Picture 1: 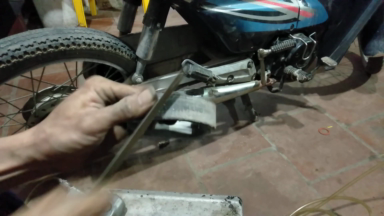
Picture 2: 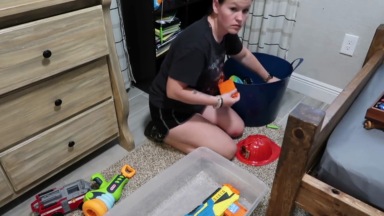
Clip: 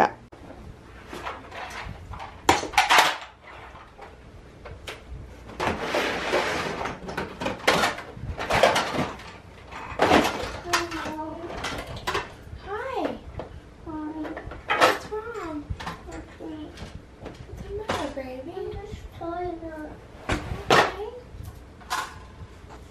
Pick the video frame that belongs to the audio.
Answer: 2